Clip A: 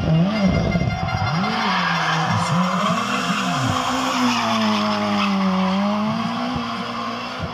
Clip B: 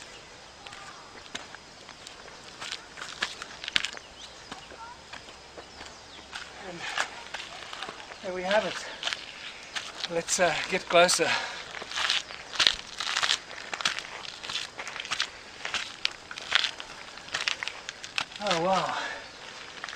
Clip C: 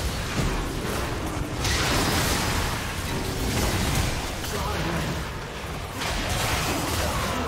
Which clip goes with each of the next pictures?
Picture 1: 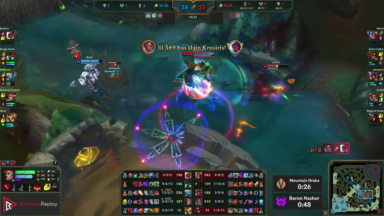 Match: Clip C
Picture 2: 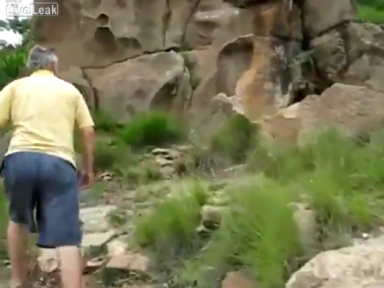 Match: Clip B